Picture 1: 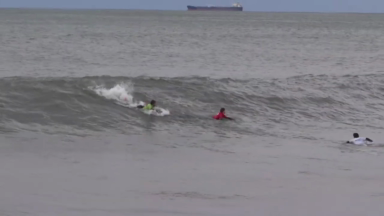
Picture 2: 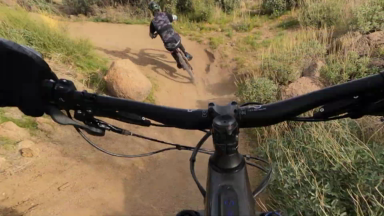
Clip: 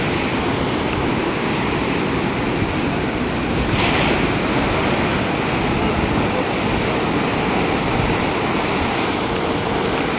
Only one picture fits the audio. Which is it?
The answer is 1